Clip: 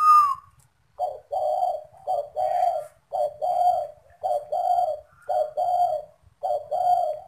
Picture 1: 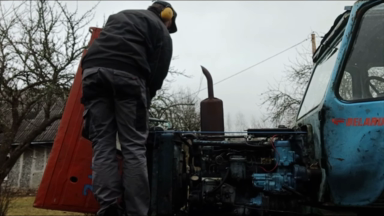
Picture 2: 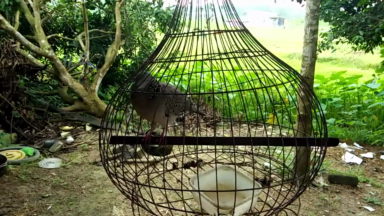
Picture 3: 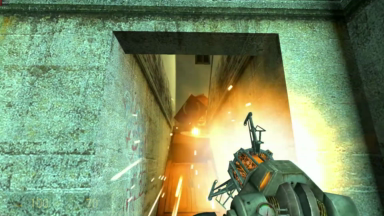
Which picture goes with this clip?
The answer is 2